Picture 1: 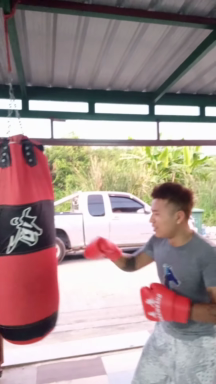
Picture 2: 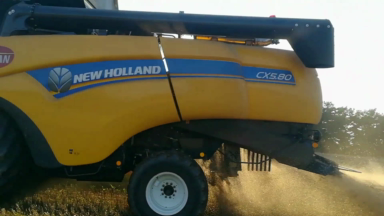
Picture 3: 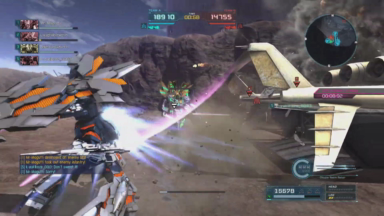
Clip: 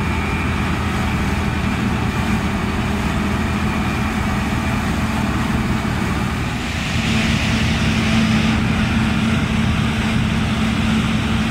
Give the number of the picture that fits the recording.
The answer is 2